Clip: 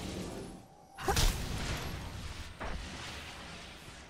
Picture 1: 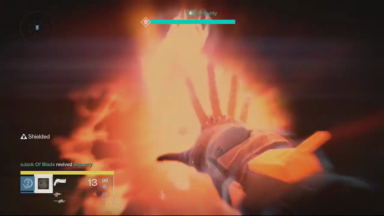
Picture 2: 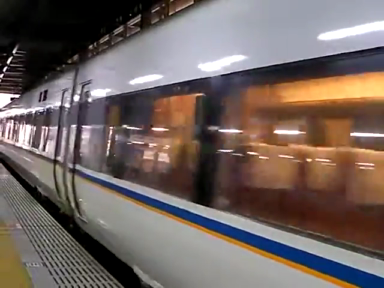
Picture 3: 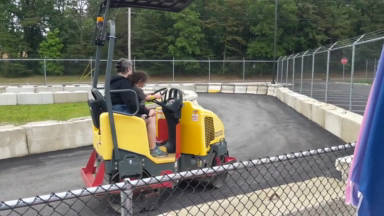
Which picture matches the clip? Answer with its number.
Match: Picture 1